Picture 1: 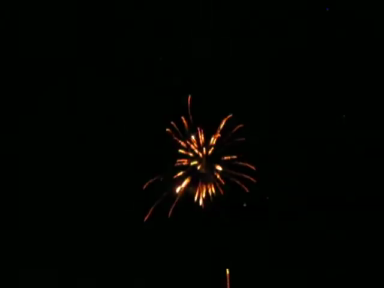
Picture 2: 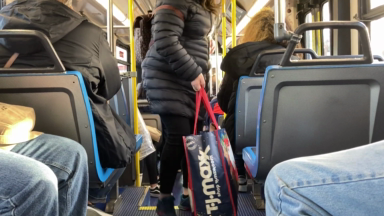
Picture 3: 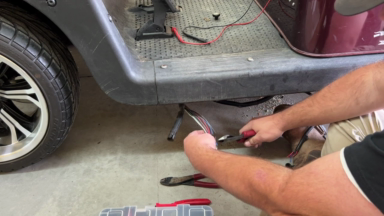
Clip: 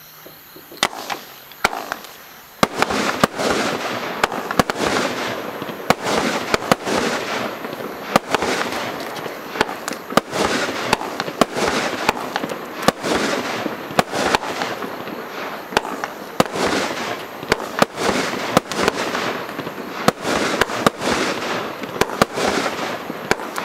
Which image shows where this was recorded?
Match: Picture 1